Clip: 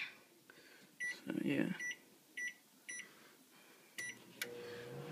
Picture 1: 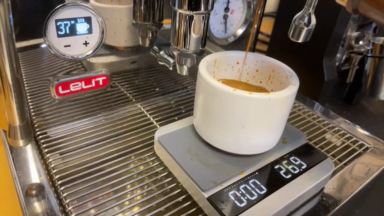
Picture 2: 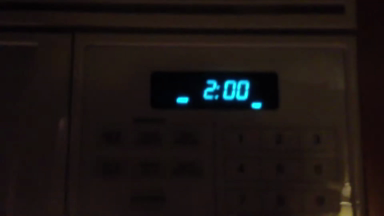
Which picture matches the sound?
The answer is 2